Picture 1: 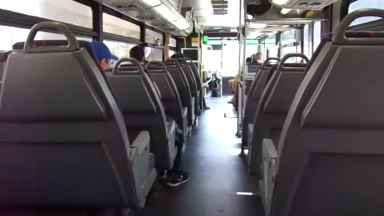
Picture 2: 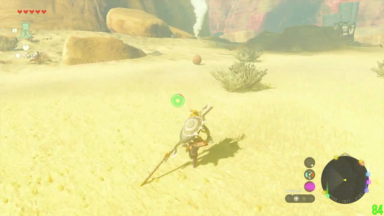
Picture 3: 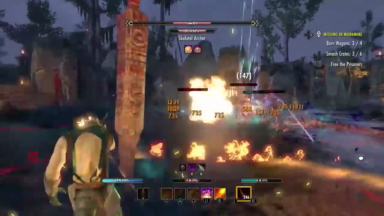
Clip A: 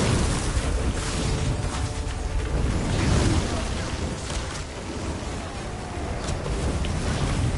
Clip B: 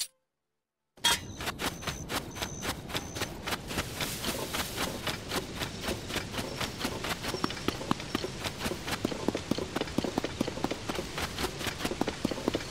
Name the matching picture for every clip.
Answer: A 3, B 2